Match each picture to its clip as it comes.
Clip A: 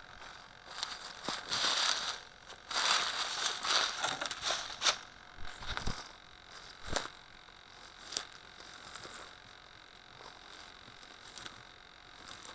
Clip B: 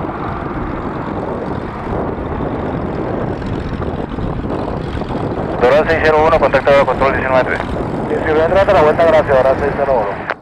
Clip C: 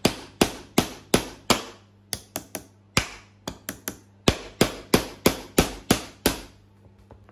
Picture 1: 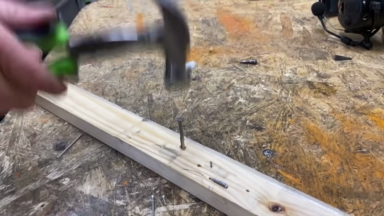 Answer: C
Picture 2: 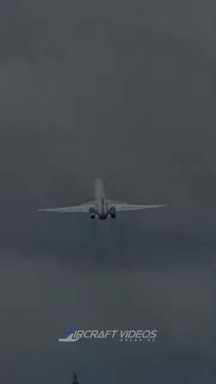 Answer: B